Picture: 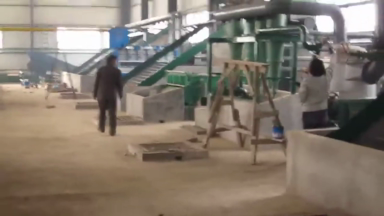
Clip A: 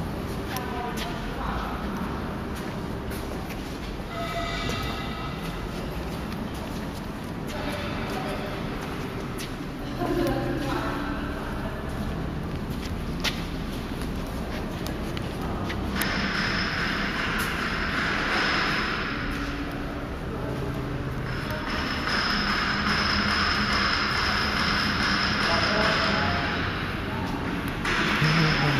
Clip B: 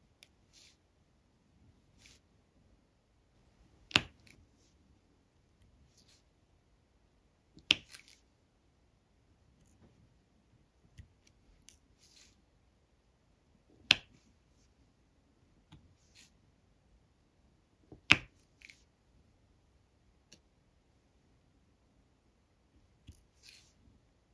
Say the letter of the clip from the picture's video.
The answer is A